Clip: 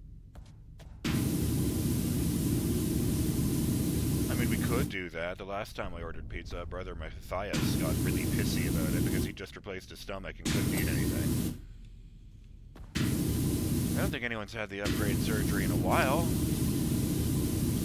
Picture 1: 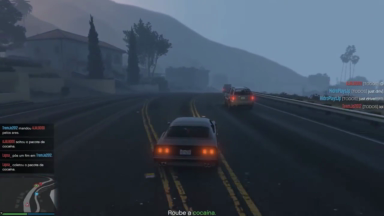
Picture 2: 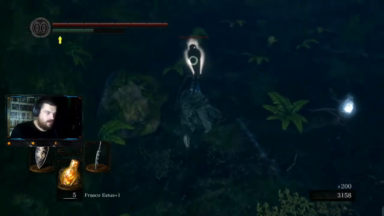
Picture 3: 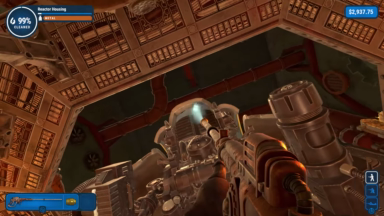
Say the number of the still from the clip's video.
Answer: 3